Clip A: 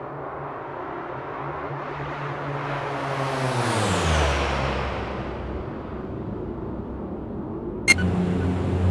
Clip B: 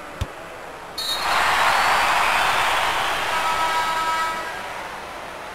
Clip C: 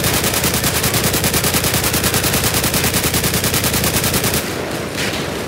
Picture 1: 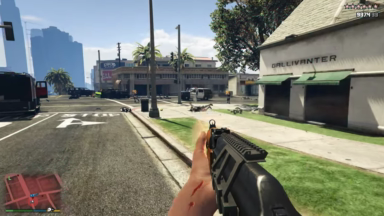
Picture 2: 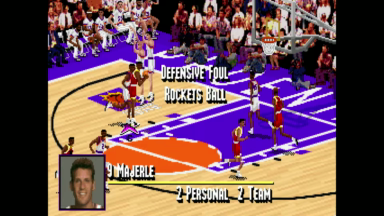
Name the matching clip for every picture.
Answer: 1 C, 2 B